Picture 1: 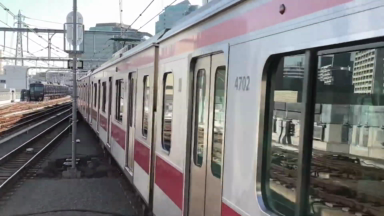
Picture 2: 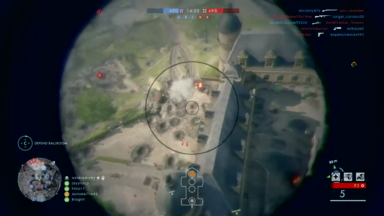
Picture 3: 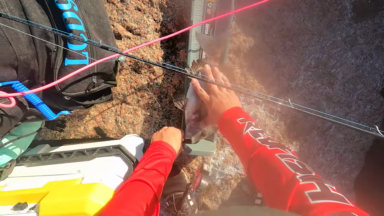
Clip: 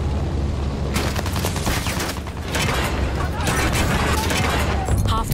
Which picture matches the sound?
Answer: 2